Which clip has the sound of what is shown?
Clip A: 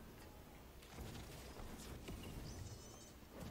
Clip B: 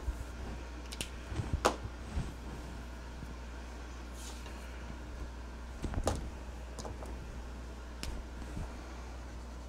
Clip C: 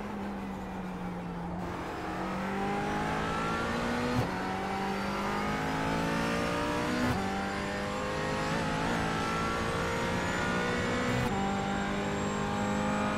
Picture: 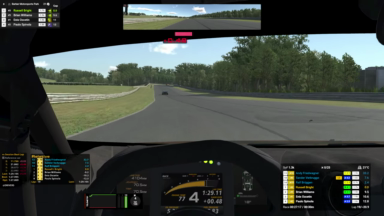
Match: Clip C